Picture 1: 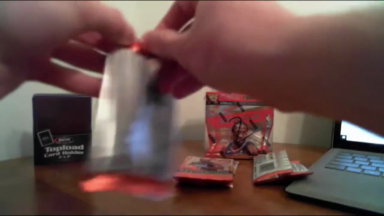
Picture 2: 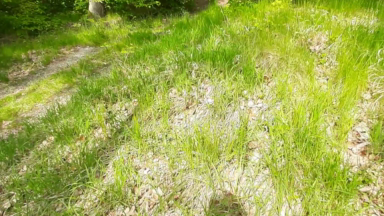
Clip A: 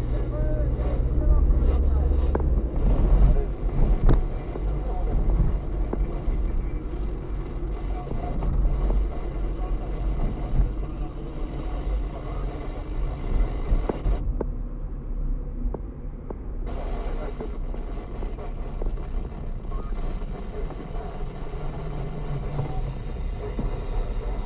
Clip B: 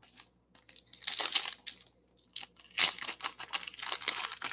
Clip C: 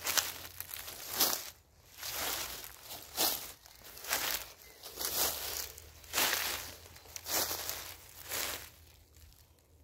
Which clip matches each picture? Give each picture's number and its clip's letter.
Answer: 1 B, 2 C